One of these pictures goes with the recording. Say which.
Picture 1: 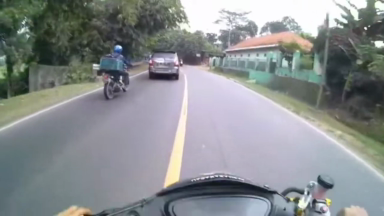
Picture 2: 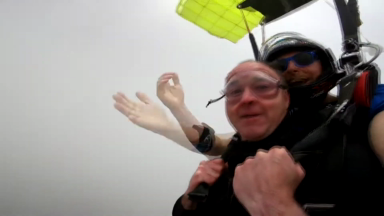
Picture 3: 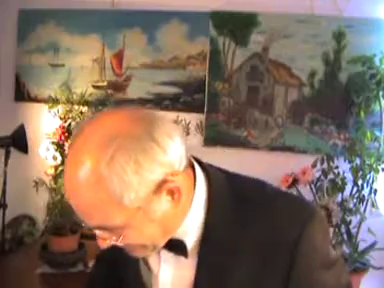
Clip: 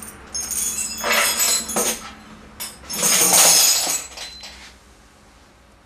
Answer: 3